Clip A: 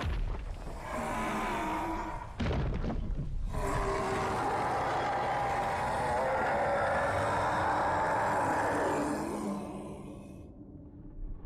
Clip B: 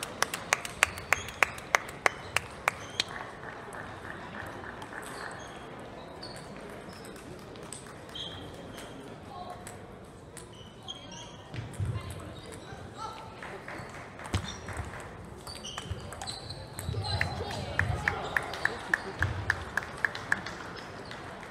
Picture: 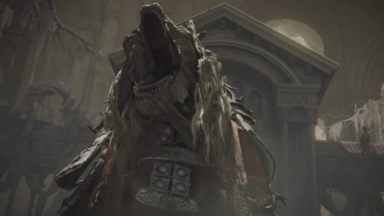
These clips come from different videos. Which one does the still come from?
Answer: A